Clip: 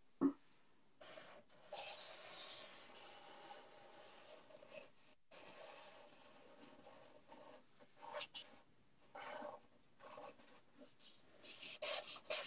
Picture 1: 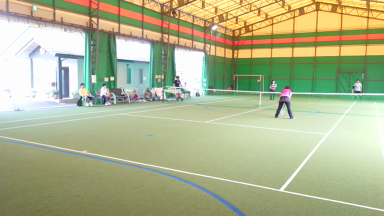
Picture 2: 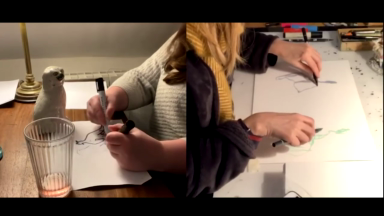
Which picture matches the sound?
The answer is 2